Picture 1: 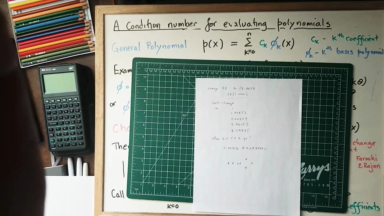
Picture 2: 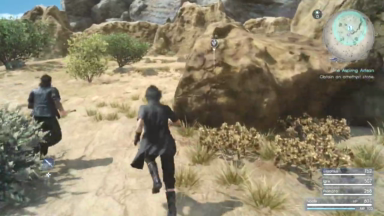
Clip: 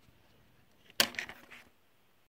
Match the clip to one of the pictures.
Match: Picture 1